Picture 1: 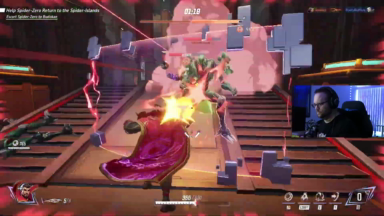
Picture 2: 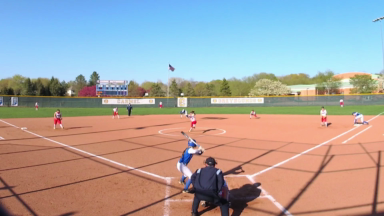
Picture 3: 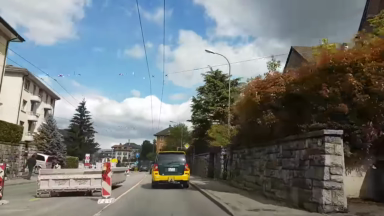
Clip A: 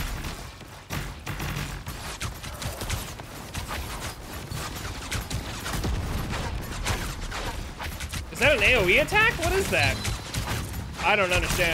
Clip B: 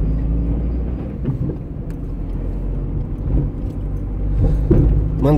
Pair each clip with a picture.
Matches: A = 1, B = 3